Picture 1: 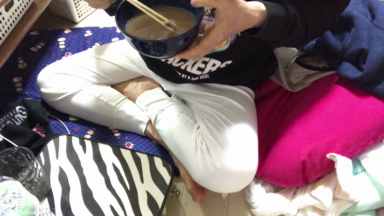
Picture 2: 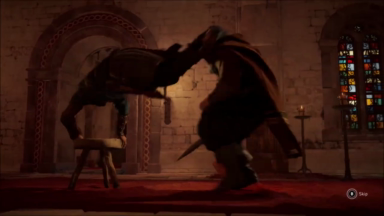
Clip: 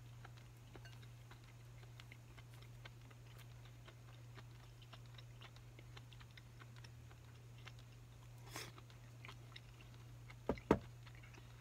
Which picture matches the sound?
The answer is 1